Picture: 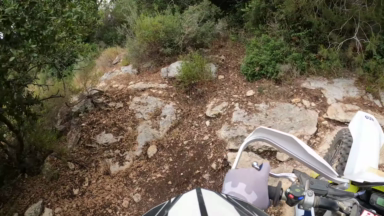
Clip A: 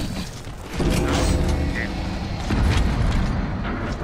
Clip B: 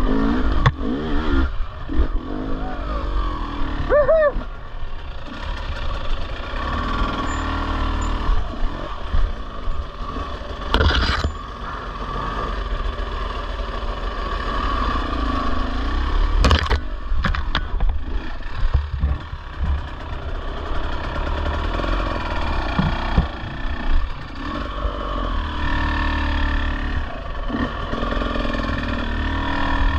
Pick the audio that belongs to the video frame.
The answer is B